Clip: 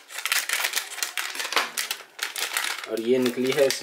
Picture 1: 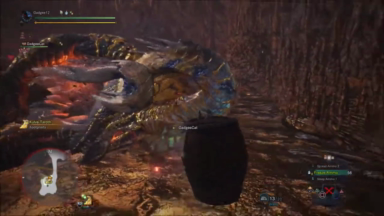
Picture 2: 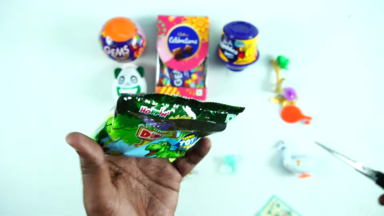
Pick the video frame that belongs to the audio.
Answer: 2